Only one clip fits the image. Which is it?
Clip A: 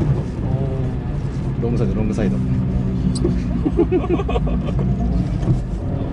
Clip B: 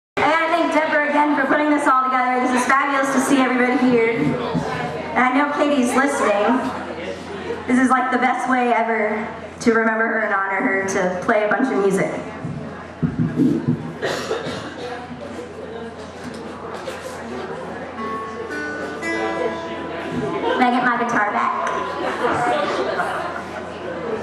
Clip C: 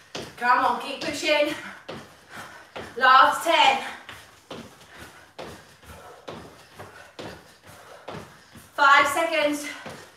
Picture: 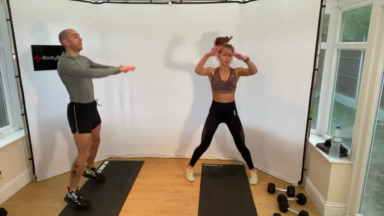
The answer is C